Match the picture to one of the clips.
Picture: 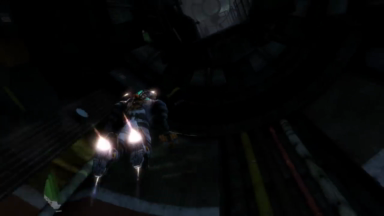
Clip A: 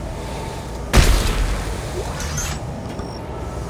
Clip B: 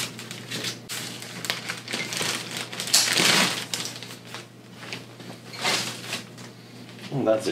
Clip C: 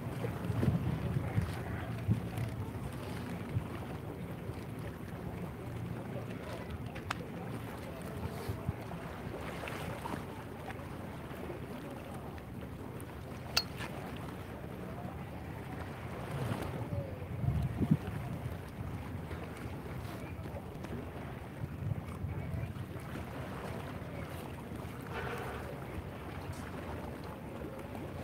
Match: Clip A